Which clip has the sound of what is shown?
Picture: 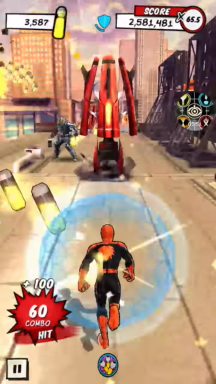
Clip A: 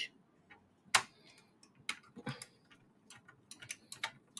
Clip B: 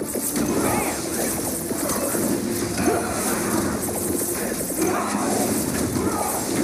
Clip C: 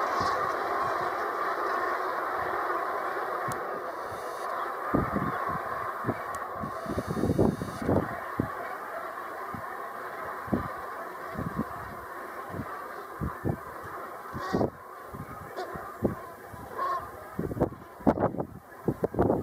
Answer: B